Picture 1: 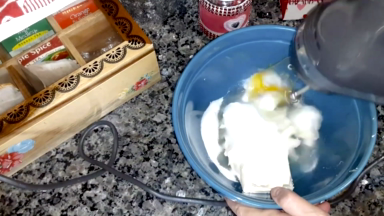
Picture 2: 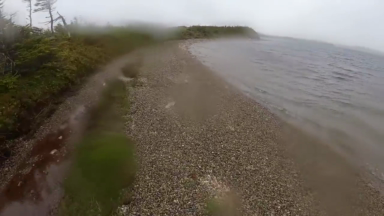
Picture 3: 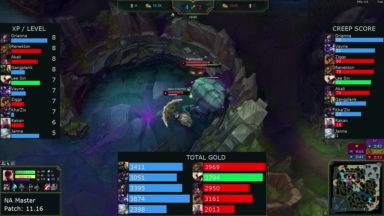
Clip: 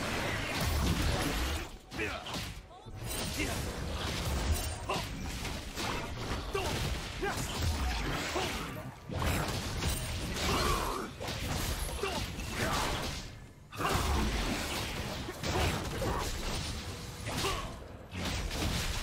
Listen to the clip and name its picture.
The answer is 3